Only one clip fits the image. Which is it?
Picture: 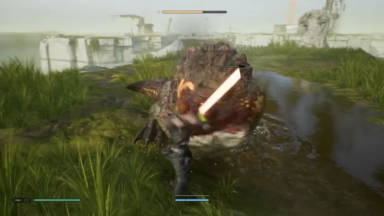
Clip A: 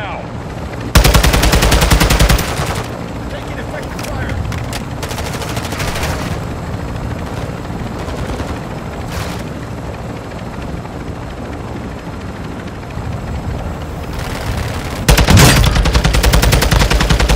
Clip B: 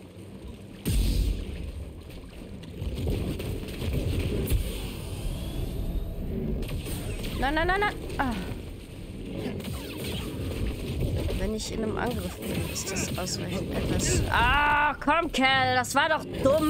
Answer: B